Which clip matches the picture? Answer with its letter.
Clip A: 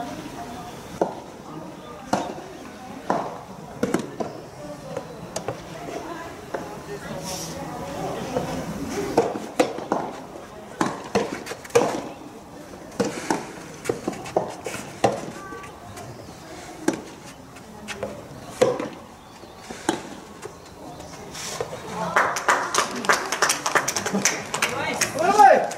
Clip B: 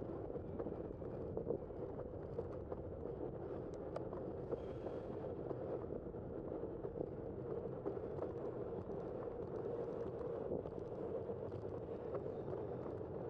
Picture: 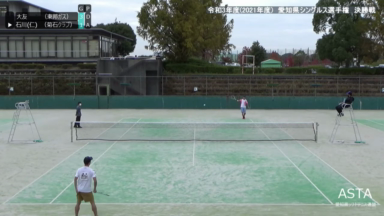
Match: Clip A